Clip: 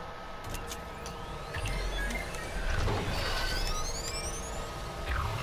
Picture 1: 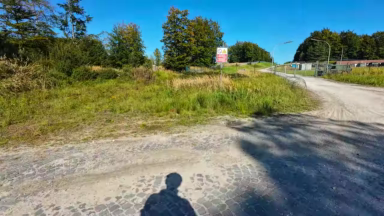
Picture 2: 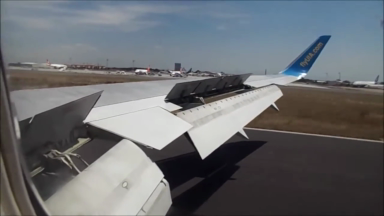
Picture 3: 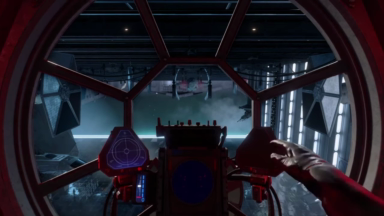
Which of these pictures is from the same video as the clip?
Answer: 3